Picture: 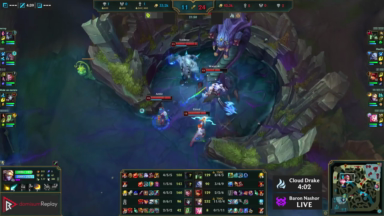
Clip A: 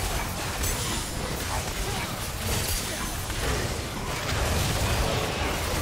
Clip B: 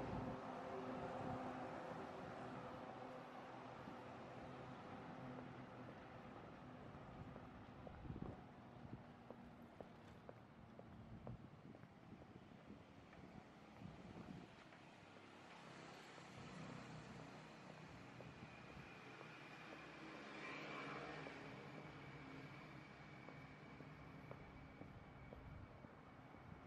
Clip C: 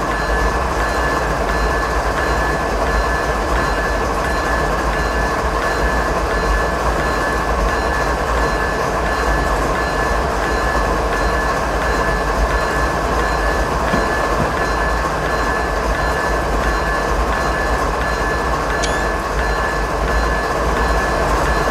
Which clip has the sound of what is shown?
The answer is A